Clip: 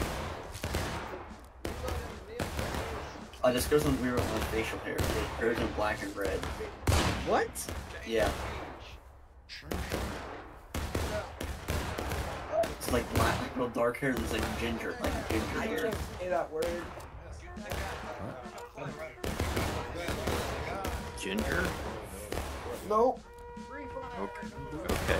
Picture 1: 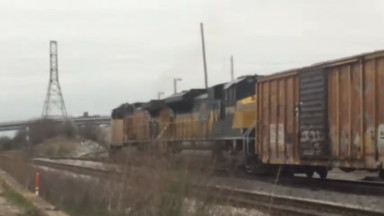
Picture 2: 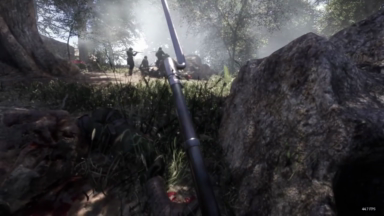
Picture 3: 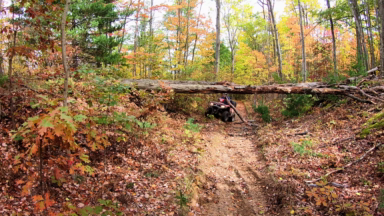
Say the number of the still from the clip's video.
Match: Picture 2